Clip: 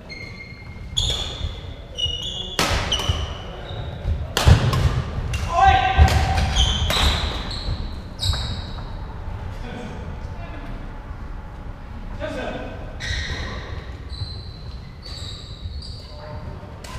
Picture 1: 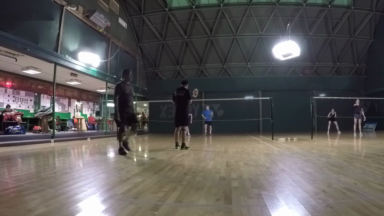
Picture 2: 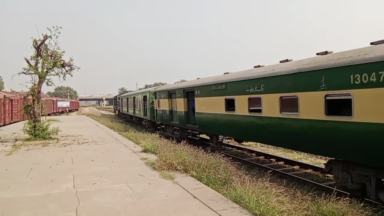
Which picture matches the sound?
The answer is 1